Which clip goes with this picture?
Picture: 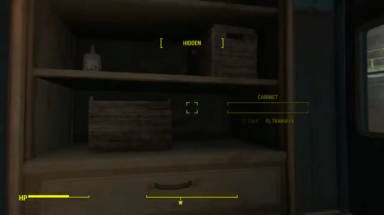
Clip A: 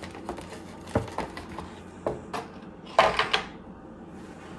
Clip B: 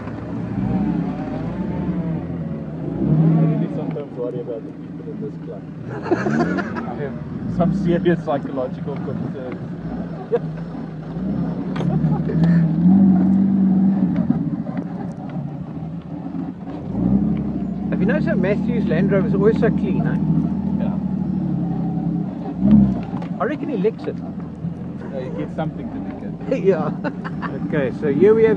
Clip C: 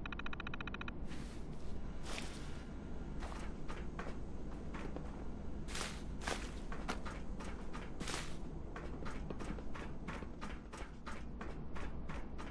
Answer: C